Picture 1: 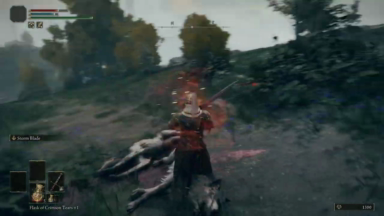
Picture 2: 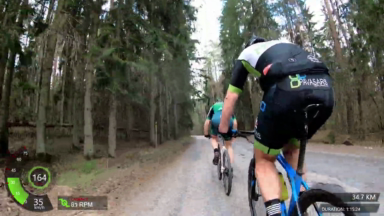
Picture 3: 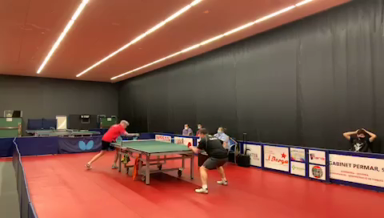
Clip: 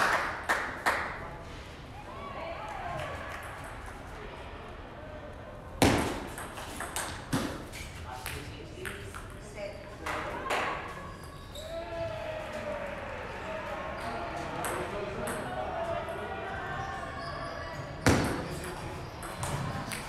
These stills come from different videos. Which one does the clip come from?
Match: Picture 3